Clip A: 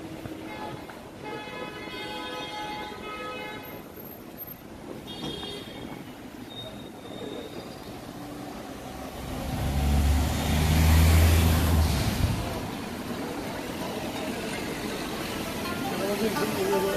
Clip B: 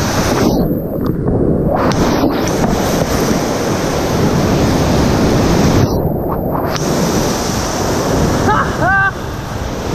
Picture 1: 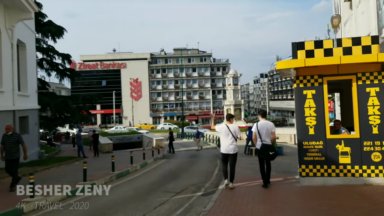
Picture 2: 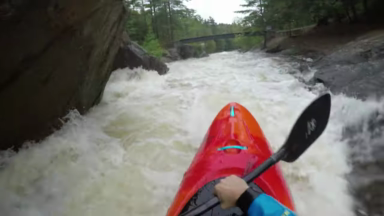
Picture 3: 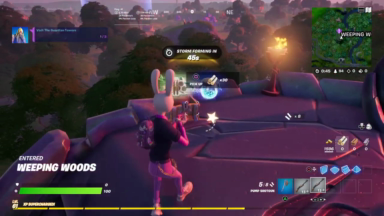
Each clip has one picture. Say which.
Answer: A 1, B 2